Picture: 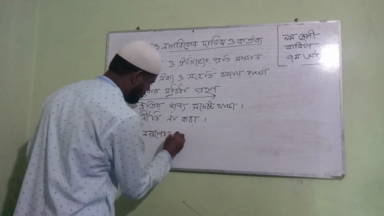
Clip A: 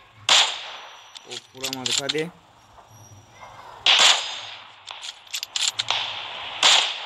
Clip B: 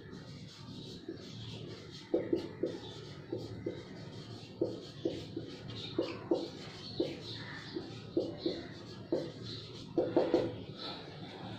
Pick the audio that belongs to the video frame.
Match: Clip B